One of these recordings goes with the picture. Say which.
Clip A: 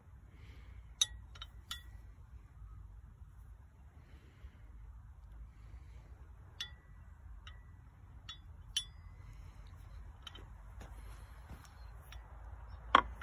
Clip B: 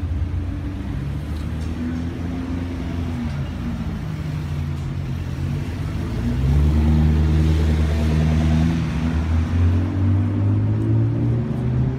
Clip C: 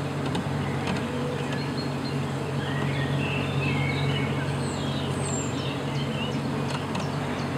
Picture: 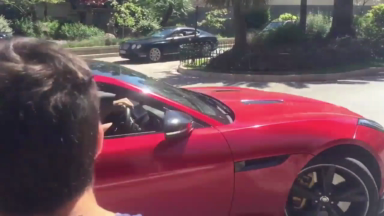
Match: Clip B